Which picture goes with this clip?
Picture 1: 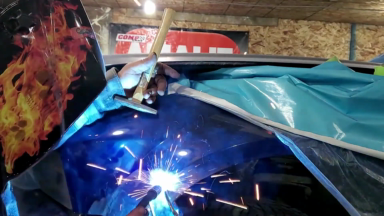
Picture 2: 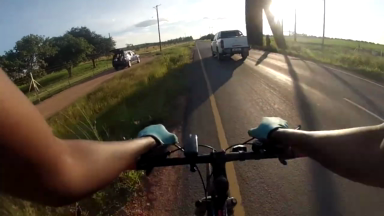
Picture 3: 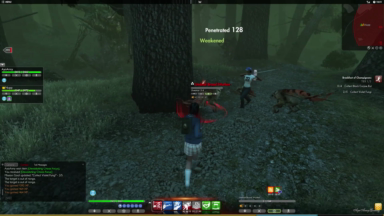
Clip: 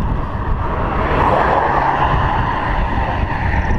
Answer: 2